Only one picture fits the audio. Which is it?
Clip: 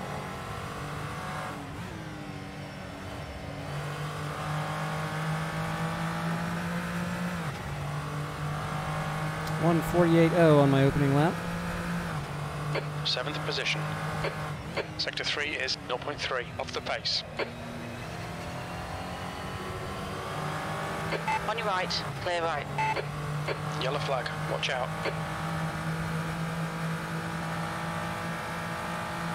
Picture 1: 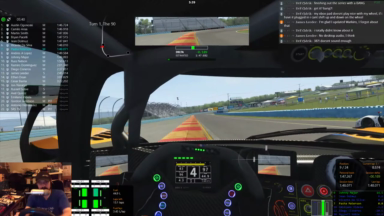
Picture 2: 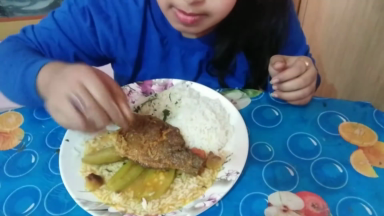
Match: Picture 1